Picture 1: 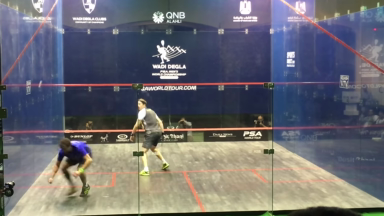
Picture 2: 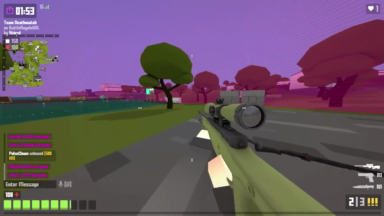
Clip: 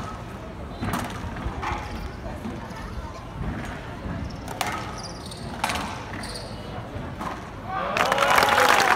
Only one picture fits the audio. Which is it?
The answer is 1